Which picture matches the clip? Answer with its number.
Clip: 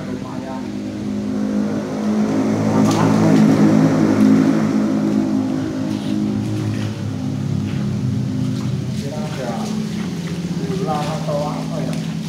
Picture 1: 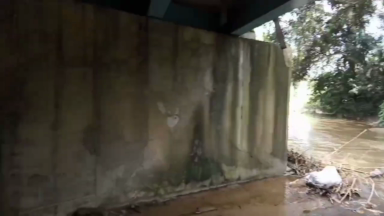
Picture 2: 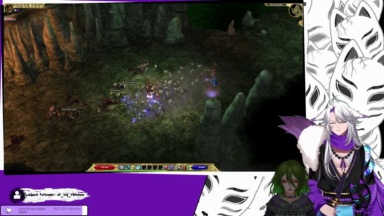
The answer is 1